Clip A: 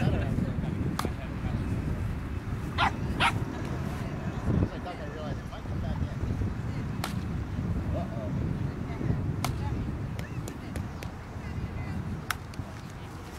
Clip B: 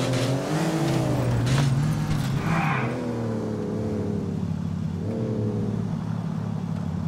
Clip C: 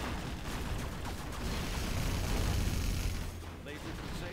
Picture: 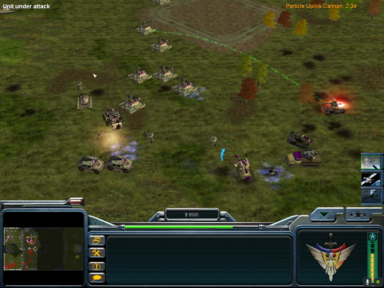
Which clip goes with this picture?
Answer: C